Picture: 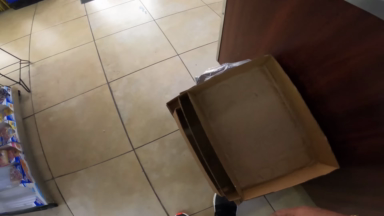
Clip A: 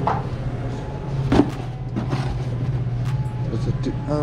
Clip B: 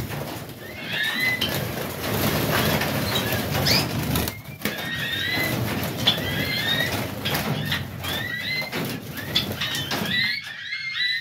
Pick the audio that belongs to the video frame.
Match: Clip A